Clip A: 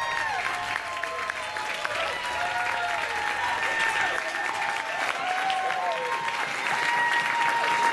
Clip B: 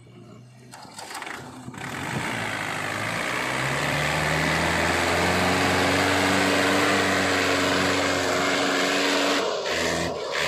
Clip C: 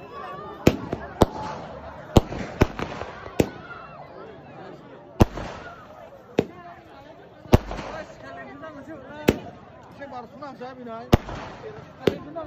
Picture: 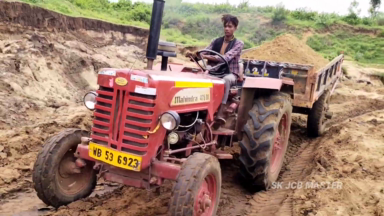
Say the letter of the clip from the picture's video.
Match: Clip B